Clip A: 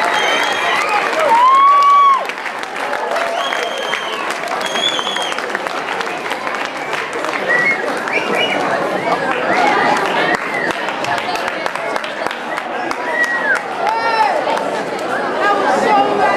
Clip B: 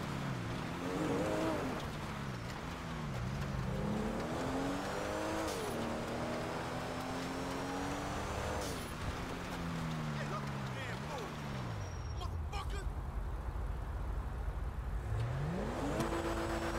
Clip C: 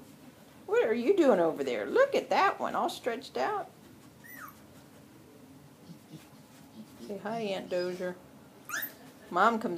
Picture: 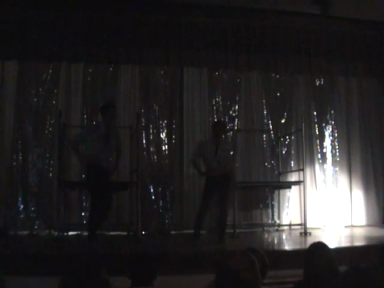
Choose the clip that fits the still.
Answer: A